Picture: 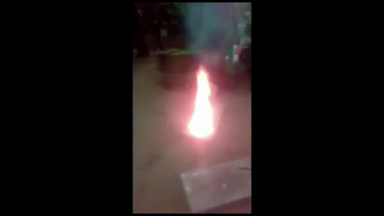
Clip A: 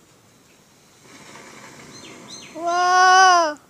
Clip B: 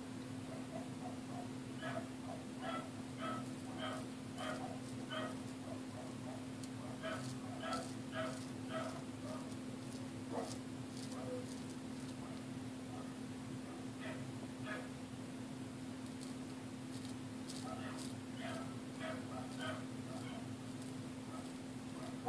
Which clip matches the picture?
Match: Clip A